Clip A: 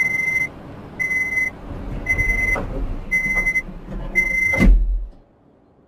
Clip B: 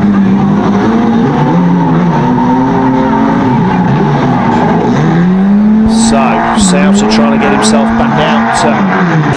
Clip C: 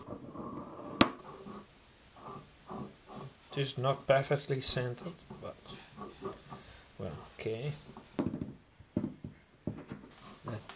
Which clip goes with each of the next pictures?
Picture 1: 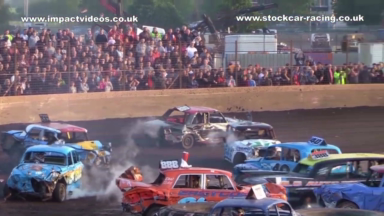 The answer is B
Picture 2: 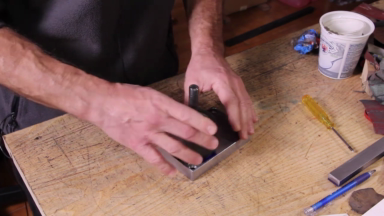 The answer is C